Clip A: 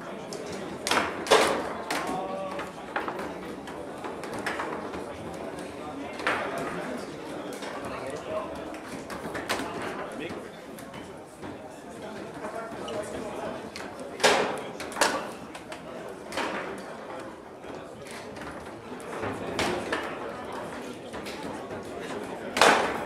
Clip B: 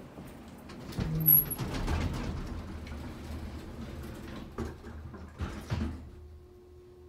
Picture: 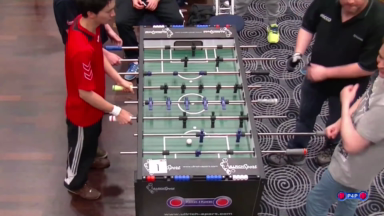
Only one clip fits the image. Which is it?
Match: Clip A